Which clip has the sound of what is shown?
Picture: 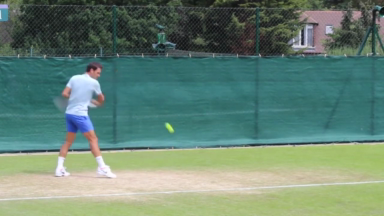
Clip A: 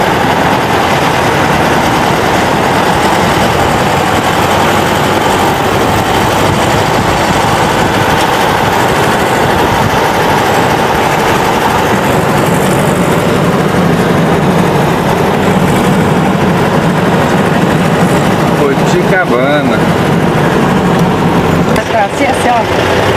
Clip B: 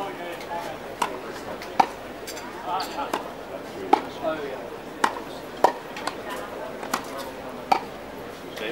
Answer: B